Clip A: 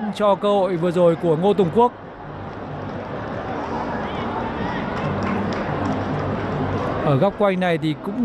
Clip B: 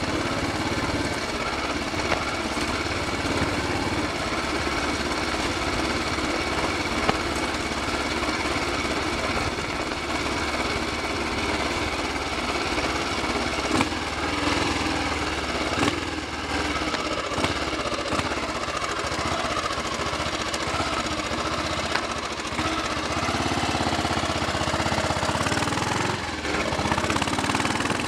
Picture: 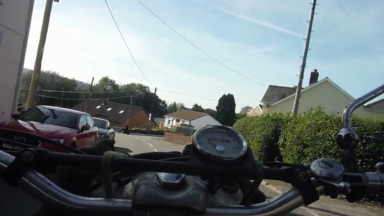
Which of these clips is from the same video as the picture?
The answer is B